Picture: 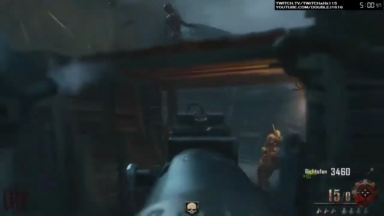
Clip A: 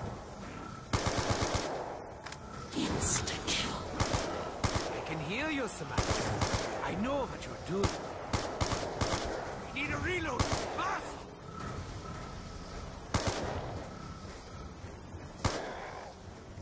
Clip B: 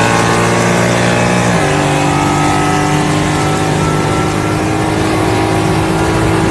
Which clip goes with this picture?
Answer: A